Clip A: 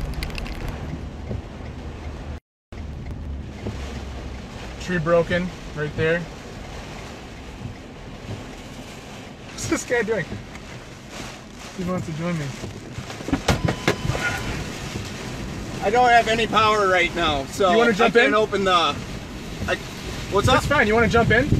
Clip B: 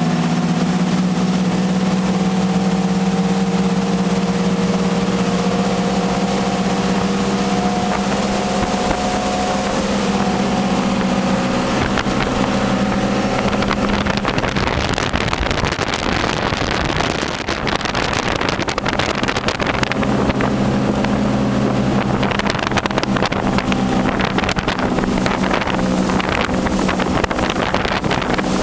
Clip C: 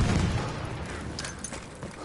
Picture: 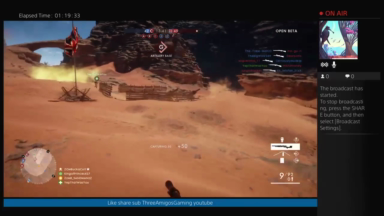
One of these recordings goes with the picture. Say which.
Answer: C